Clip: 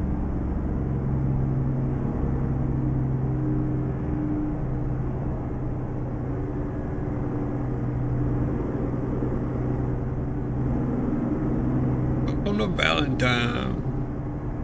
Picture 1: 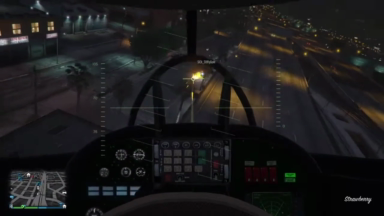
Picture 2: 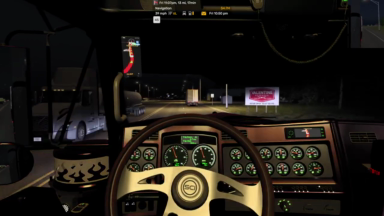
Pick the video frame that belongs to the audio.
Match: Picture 2